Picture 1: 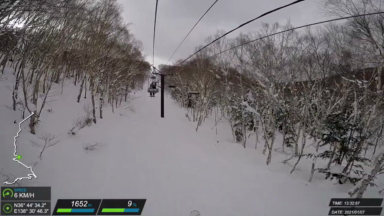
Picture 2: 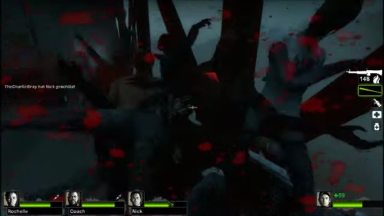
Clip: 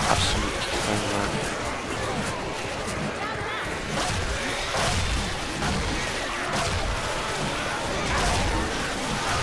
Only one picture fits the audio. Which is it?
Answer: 2